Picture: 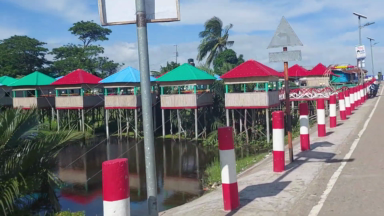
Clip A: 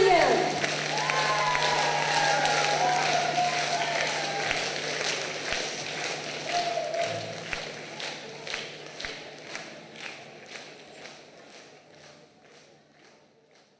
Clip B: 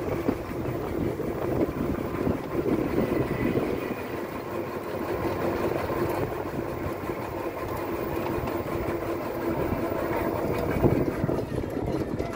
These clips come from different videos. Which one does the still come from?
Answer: B